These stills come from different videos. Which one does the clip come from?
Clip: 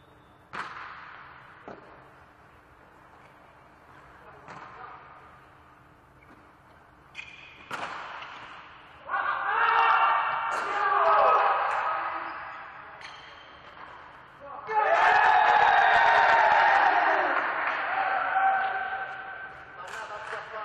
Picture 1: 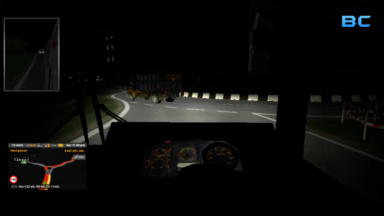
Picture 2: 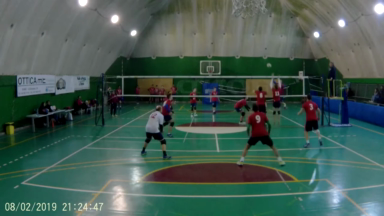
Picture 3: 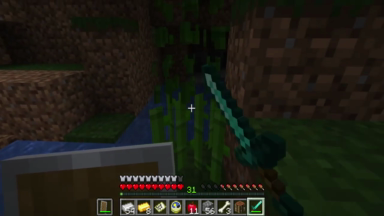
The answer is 2